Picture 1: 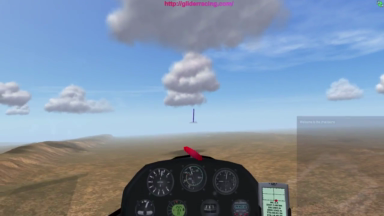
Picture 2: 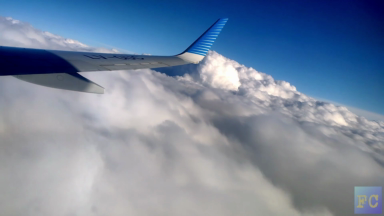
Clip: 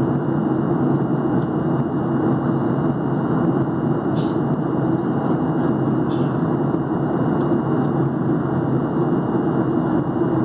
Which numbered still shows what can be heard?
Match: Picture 2